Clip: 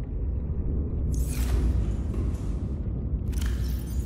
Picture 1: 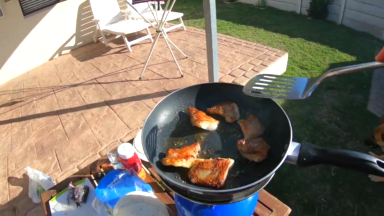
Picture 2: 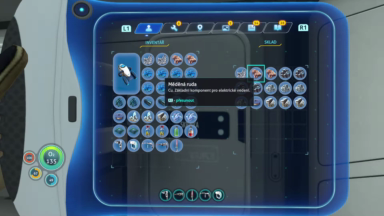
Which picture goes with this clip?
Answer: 2